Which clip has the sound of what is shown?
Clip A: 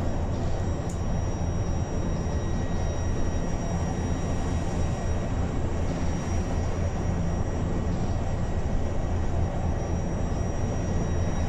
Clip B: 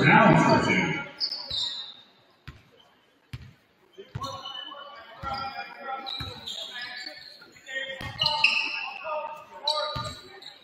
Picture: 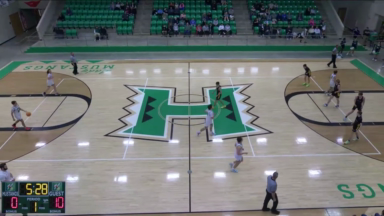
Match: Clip B